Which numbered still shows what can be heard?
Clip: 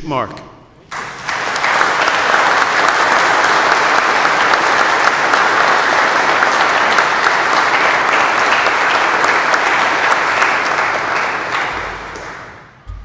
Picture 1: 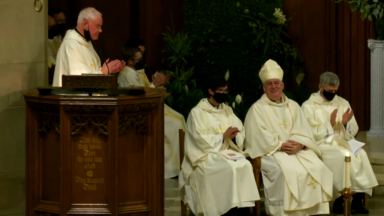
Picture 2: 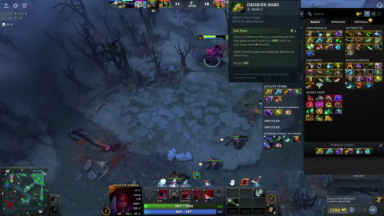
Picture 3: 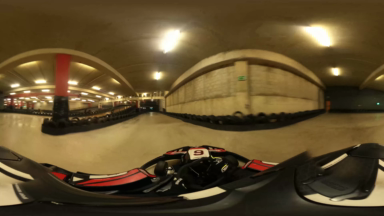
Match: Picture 1